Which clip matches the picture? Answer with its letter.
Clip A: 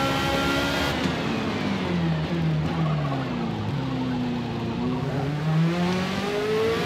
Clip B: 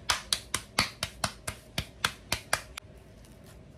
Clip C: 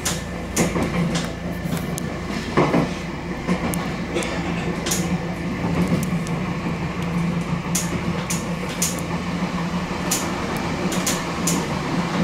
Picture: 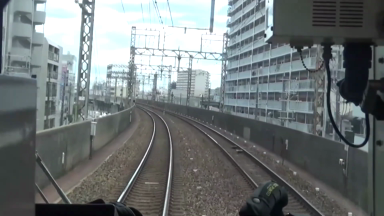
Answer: C